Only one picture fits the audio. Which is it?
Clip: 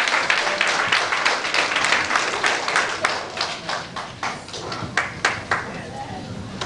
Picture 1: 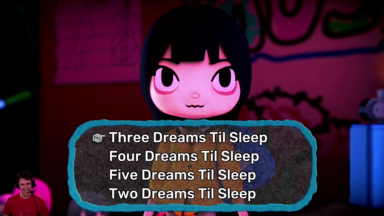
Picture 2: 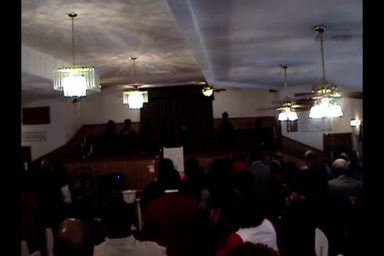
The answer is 2